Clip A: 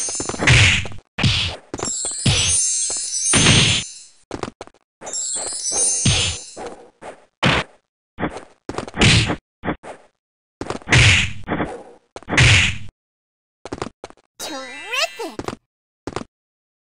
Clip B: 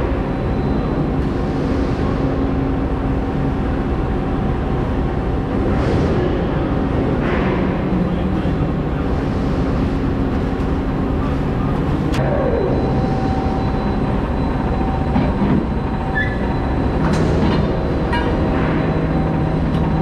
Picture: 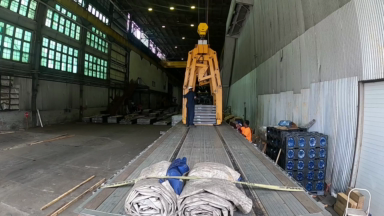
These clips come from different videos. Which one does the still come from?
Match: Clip B